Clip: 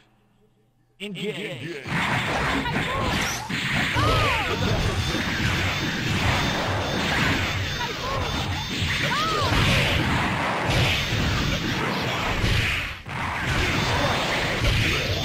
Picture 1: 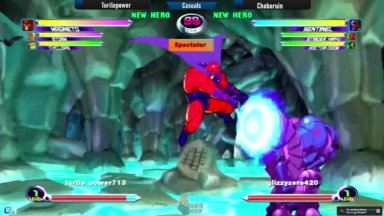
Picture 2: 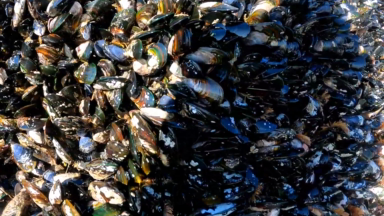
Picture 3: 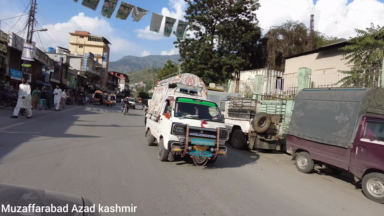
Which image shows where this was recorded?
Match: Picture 1